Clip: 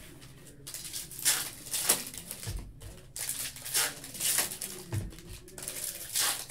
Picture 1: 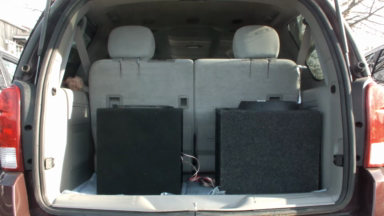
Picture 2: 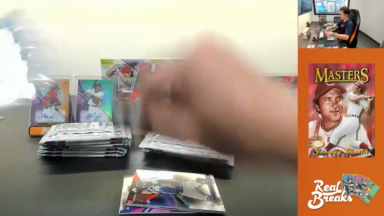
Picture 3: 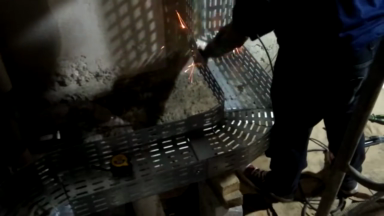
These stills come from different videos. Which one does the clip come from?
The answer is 2